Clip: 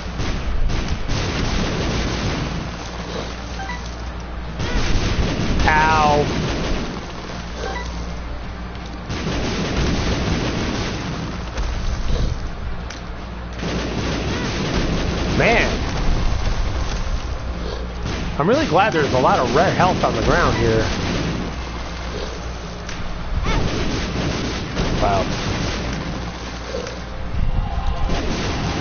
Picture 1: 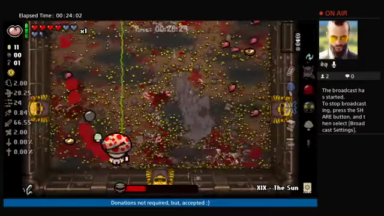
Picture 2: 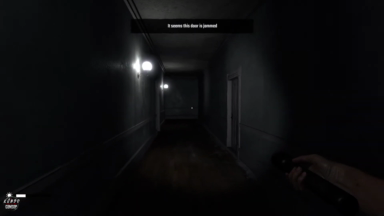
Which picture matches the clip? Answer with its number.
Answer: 1